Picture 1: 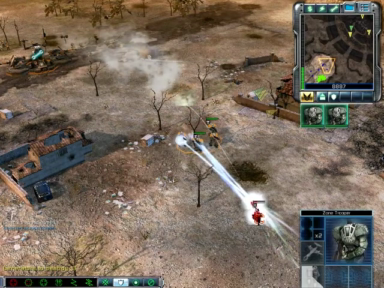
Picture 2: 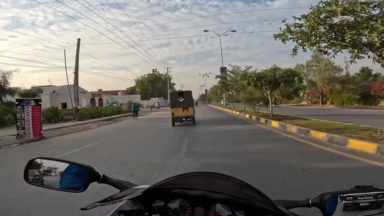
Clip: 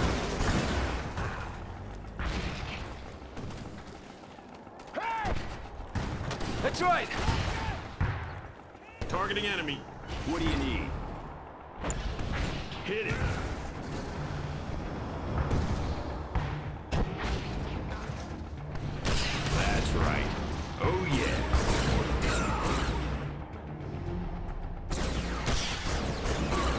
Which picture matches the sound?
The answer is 1